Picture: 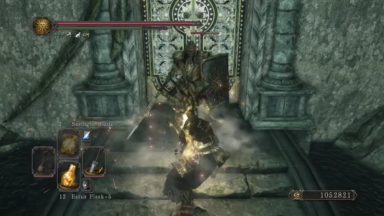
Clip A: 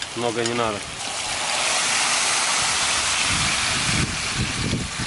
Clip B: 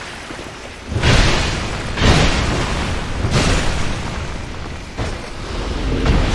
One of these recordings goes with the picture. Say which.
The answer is B